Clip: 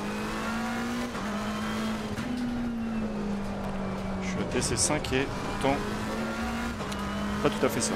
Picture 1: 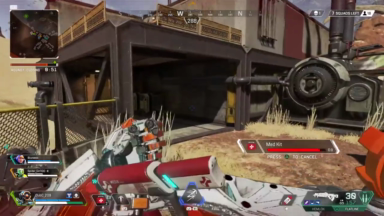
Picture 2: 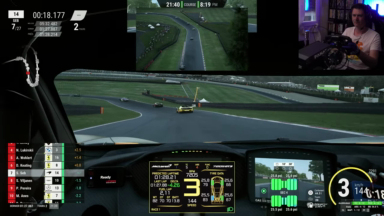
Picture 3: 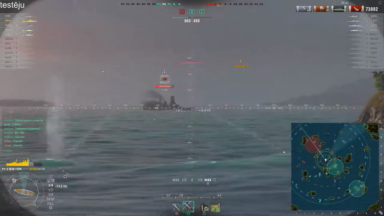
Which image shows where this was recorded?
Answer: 2